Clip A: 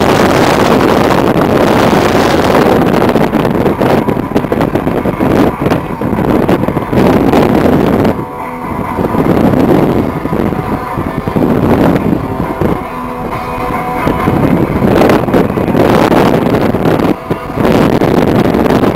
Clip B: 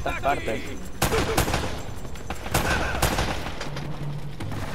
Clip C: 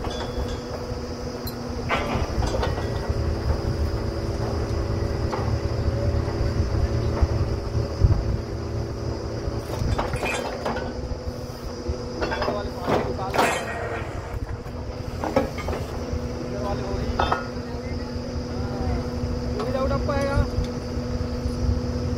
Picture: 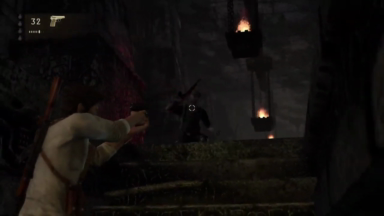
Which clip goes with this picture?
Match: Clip B